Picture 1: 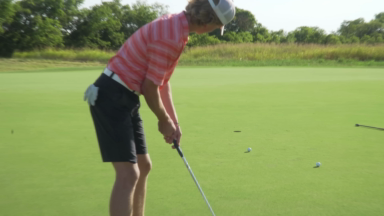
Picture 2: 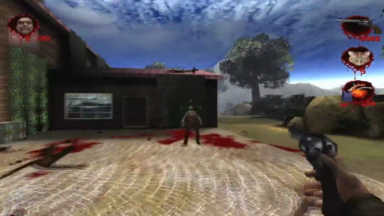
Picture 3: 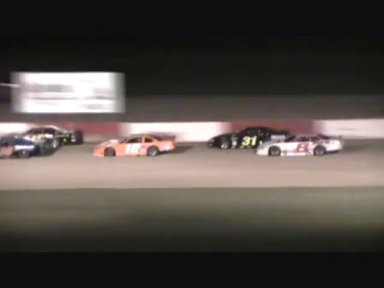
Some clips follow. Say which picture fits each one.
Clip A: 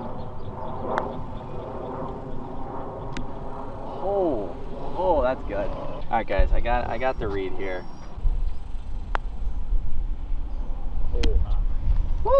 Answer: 1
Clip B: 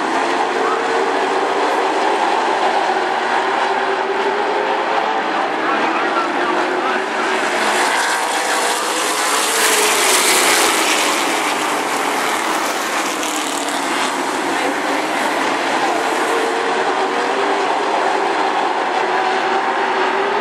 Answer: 3